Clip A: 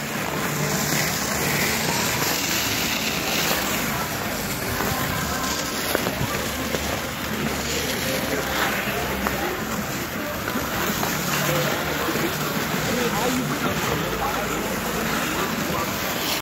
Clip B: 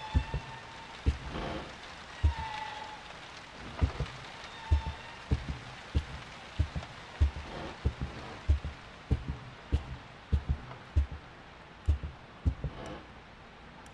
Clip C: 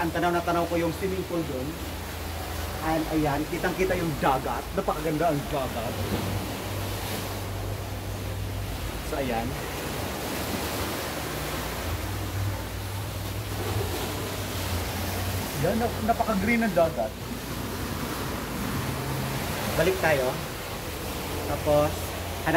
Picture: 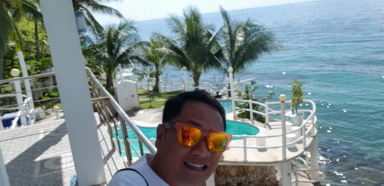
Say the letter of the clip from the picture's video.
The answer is C